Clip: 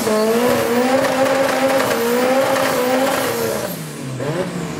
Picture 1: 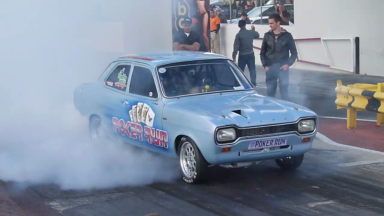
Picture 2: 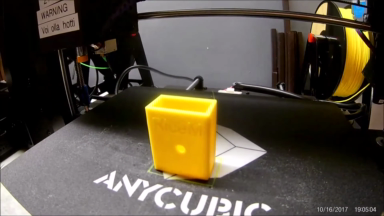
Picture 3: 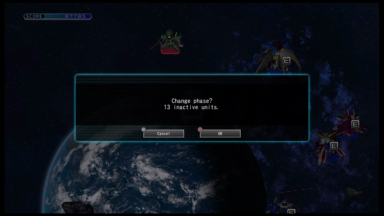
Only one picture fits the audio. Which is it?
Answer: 1